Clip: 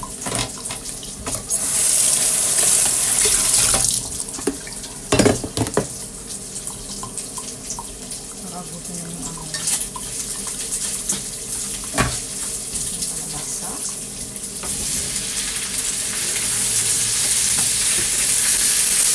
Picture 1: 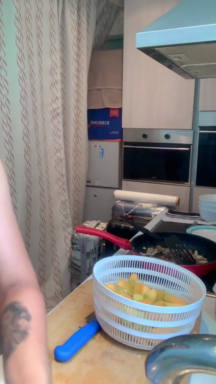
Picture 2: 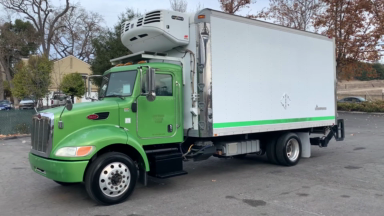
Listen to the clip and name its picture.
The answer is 1